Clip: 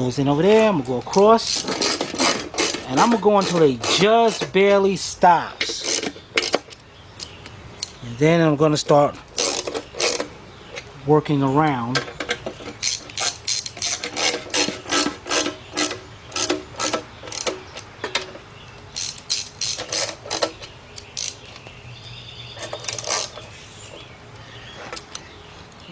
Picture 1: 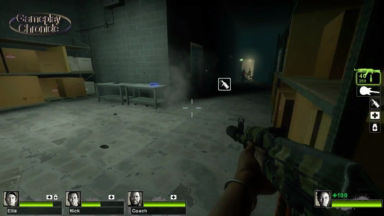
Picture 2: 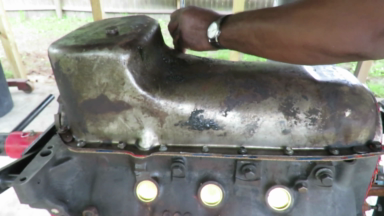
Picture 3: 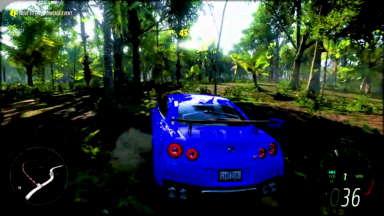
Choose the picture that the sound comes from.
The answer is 2